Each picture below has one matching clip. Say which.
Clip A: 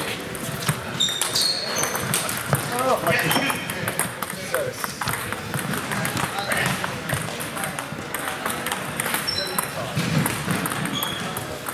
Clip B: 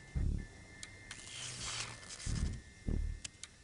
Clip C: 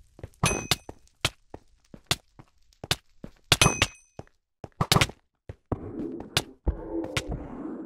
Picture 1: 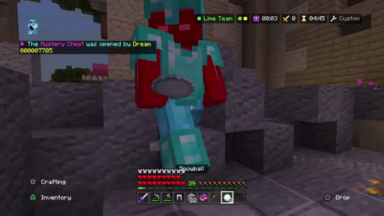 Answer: C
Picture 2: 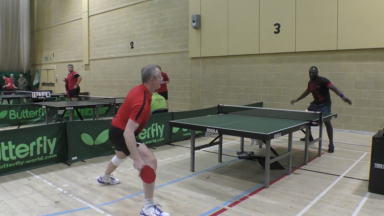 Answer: A